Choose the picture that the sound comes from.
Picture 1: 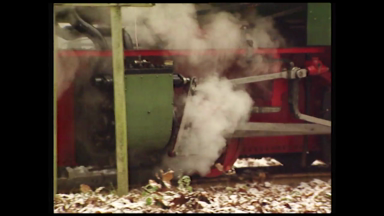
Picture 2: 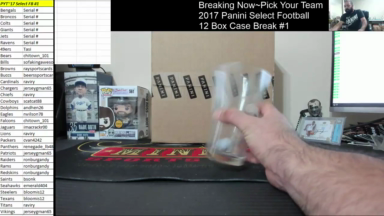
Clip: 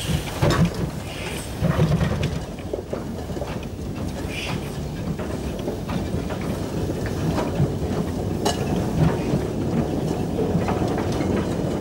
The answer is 1